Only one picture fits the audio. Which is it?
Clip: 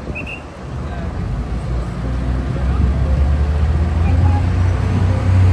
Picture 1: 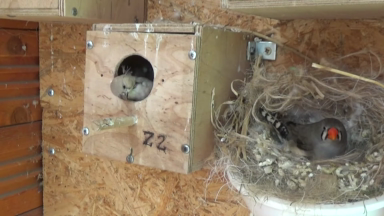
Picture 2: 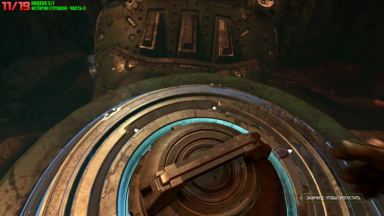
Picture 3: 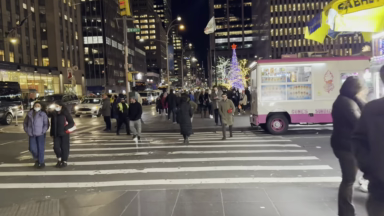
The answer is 3